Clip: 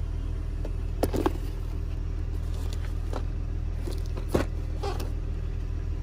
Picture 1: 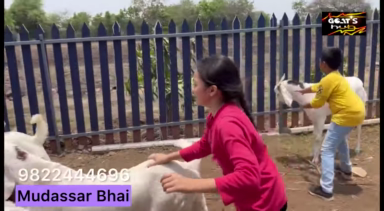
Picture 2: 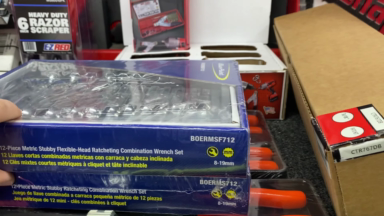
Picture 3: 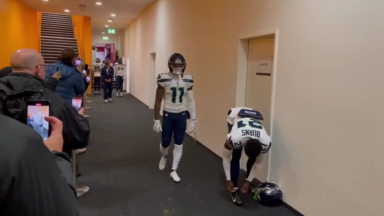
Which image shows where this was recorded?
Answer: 2